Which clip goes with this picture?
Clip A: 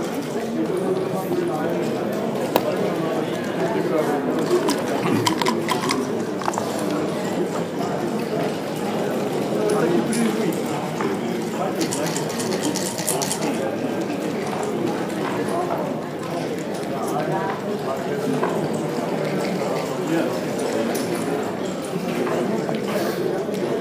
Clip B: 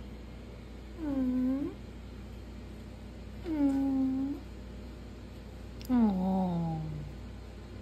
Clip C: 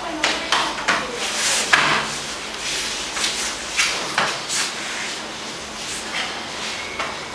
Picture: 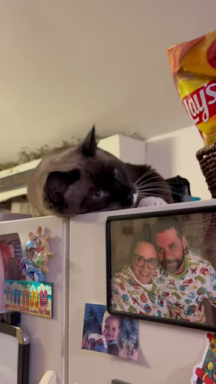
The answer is B